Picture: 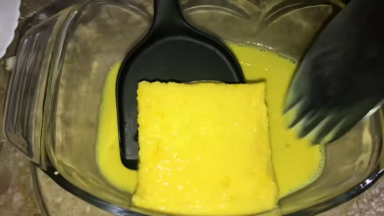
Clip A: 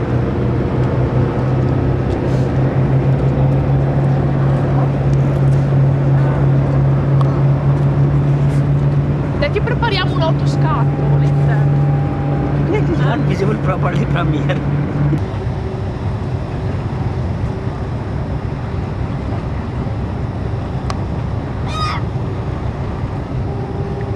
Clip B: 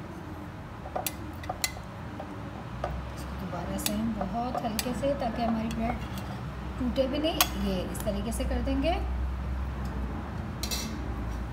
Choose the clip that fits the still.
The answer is B